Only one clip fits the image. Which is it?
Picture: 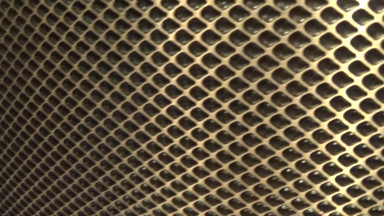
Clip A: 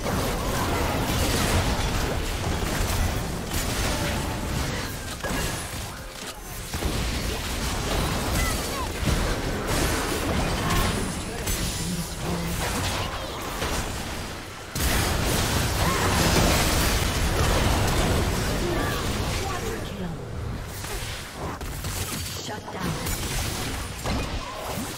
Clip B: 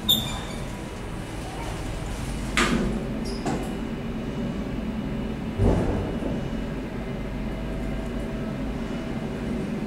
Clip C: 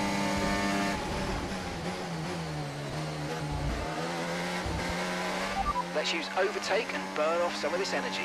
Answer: B